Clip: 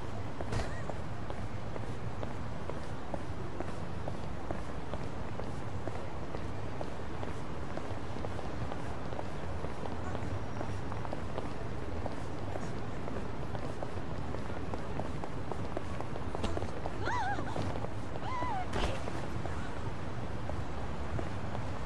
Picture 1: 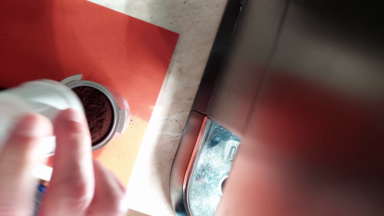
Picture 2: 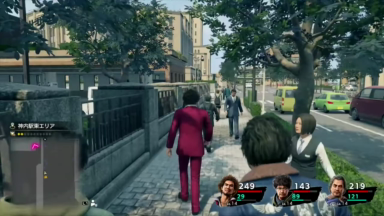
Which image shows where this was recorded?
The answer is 2